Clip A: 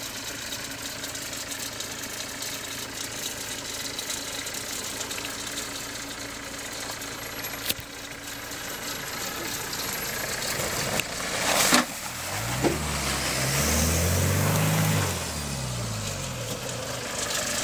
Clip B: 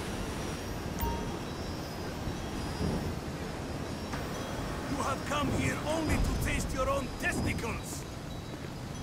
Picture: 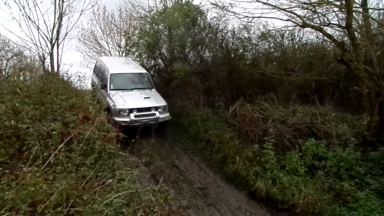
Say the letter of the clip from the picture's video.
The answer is A